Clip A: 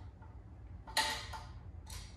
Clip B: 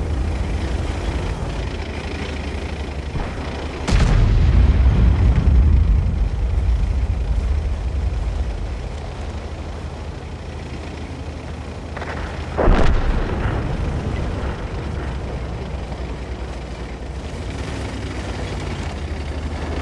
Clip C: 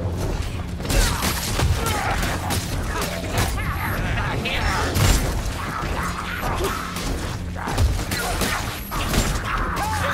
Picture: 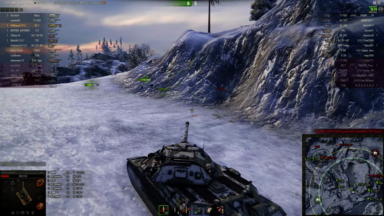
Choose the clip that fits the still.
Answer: B